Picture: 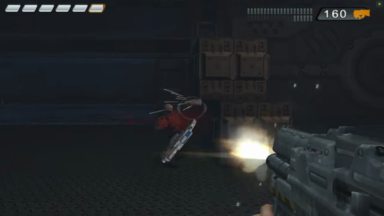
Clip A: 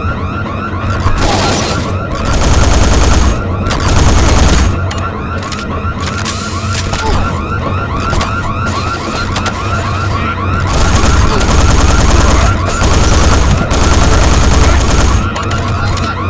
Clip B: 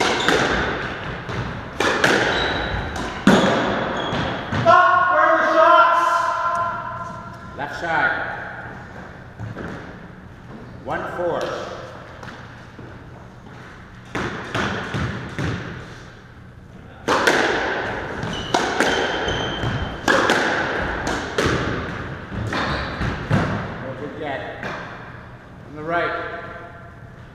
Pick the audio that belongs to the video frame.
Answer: A